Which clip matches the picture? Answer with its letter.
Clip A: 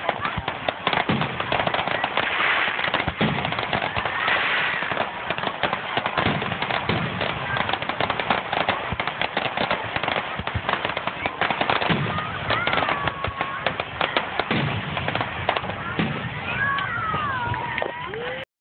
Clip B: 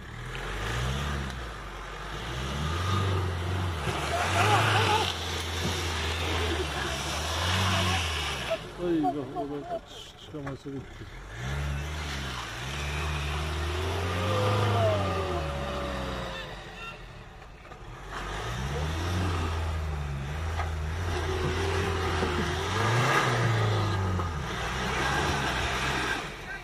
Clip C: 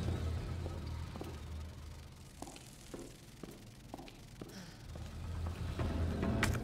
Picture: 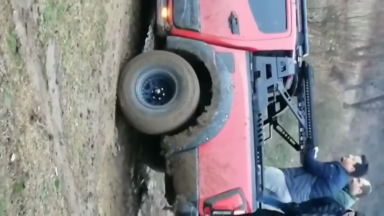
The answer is B